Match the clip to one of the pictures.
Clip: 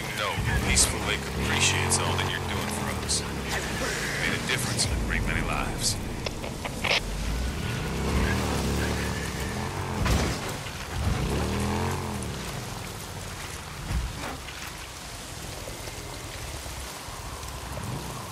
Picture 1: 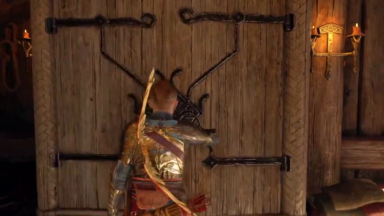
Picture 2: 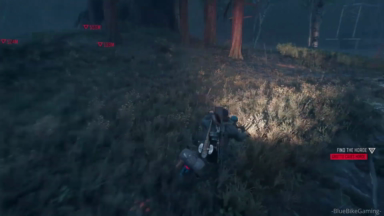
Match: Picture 2